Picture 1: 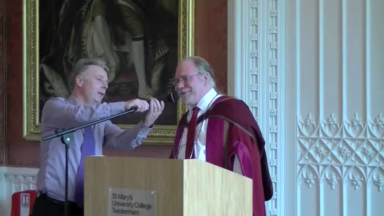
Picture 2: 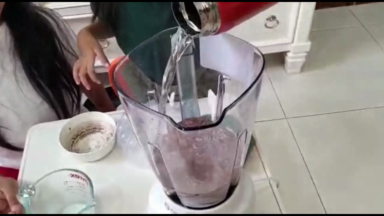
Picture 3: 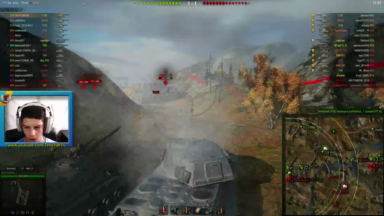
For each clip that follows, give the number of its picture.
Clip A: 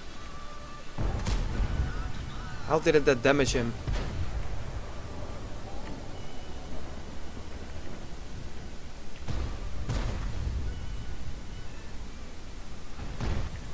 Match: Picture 3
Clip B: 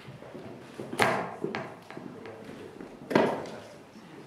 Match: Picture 1